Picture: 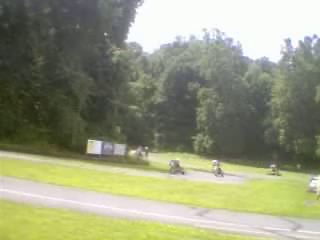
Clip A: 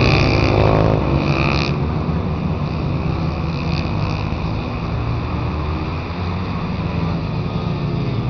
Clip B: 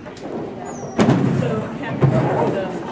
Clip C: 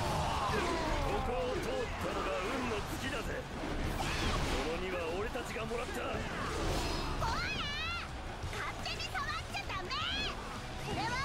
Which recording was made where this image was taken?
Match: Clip A